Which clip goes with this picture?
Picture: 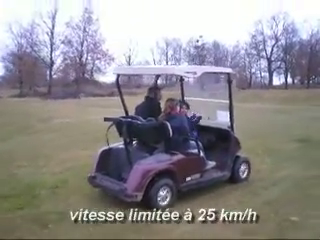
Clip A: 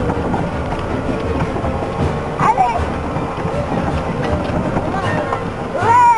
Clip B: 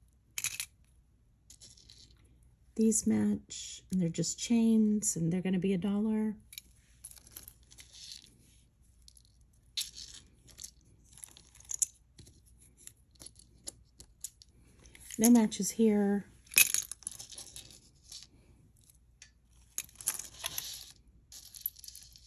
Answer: A